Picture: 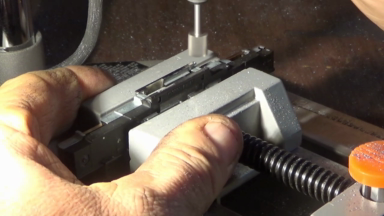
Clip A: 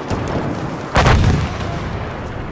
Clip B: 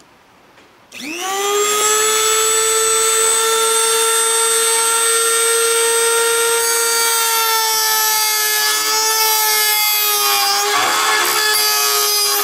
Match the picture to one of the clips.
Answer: B